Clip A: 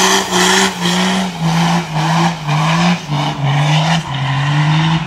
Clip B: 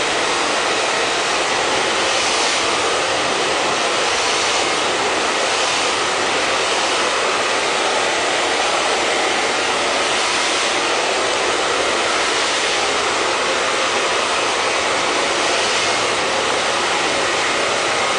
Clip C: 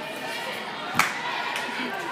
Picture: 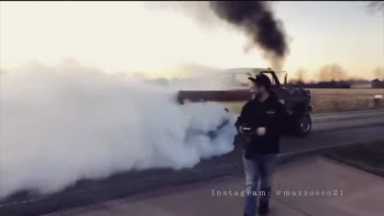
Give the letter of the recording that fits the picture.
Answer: A